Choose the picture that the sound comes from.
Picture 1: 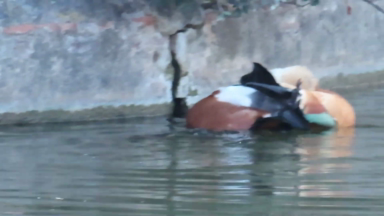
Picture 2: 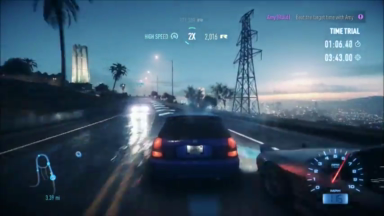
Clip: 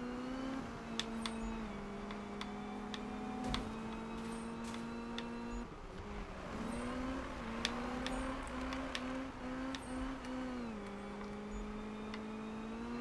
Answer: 2